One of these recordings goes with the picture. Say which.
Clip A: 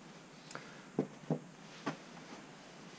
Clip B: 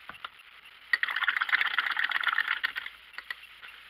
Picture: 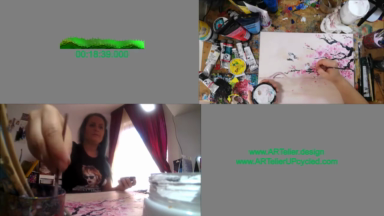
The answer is B